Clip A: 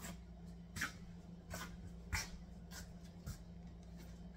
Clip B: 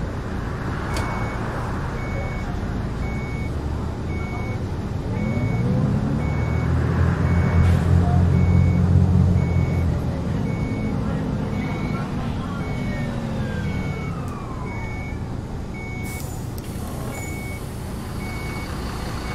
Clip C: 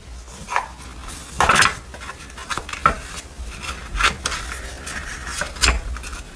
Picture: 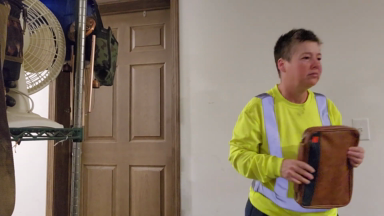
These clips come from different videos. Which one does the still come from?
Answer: A